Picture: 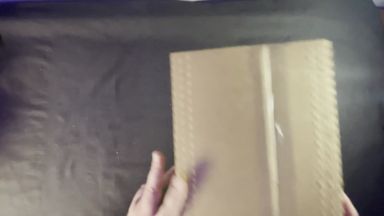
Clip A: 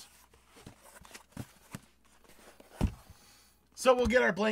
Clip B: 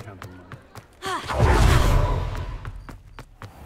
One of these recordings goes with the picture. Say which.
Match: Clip A